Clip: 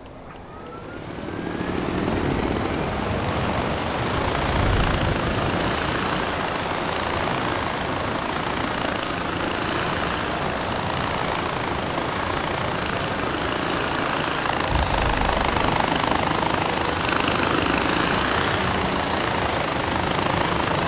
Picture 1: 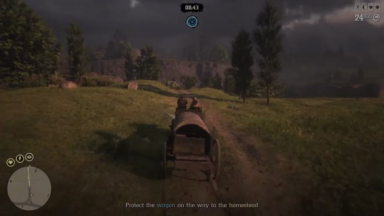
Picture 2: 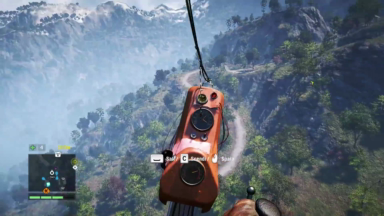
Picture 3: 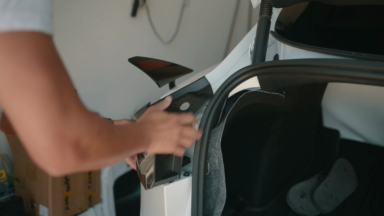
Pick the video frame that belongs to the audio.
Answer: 2